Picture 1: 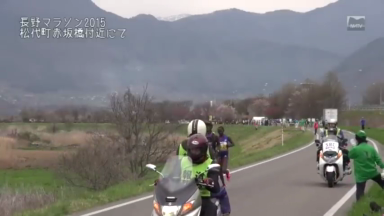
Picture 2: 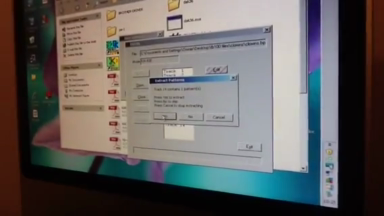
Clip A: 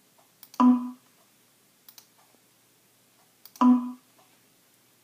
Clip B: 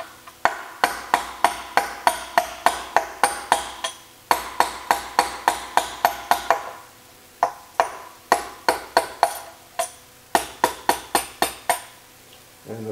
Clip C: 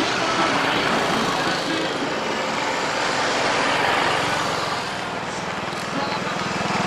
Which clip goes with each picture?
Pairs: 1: C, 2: A